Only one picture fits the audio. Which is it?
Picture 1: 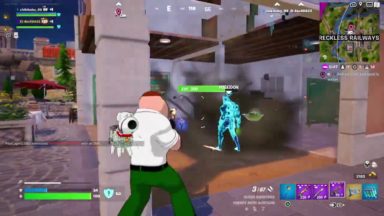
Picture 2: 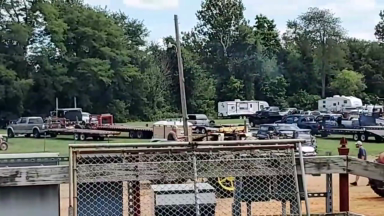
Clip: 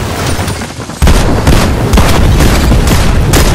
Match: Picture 1